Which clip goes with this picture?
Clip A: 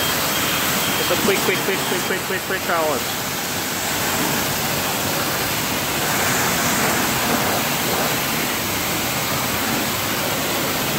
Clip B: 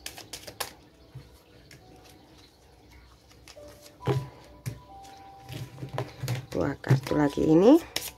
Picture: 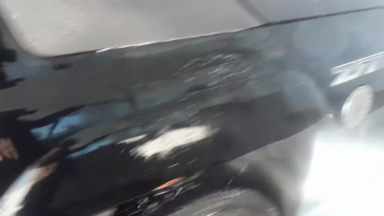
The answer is A